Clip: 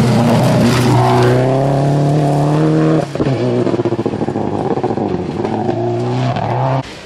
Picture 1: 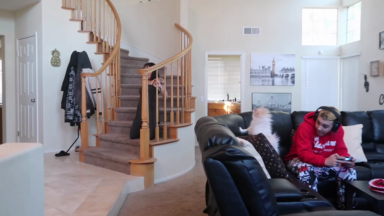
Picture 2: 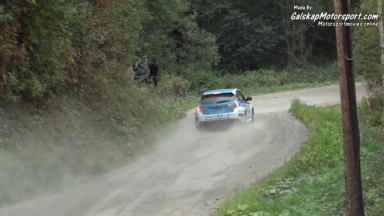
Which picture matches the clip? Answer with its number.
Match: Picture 2